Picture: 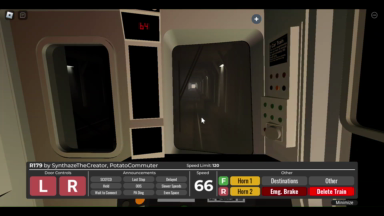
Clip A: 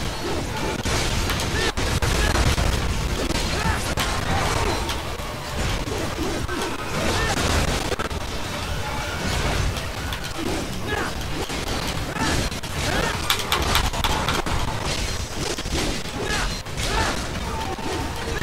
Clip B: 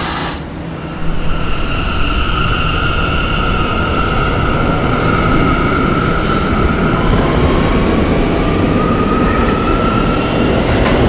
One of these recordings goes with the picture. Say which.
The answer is B